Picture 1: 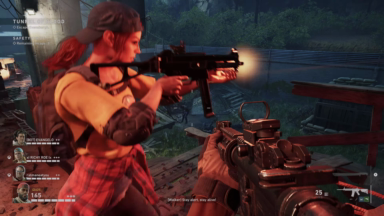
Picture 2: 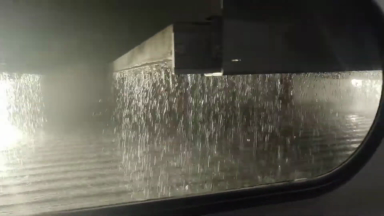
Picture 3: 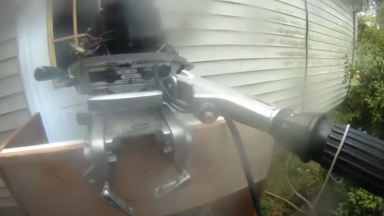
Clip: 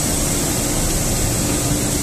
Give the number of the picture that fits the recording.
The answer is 2